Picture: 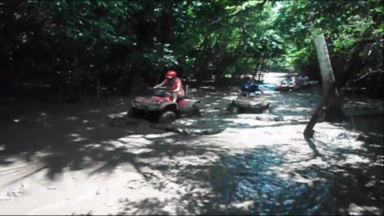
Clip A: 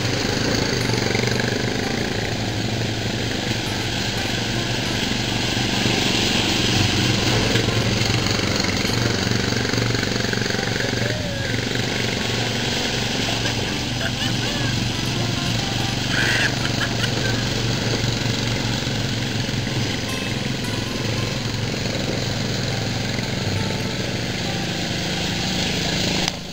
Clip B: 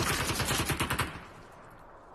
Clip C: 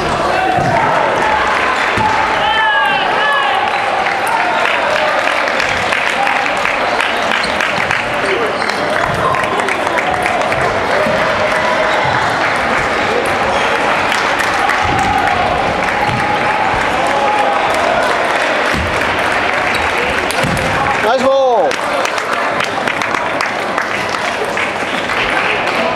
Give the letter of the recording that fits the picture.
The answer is A